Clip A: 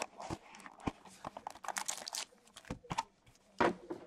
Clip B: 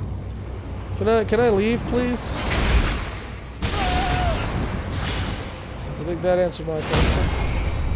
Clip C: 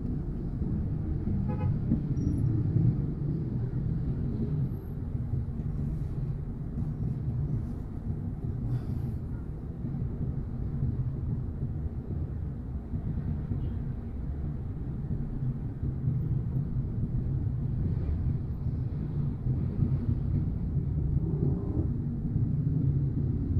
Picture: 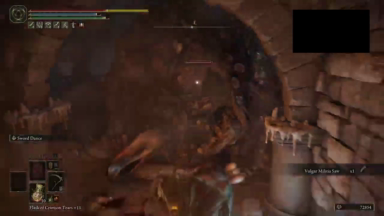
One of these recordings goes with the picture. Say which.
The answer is B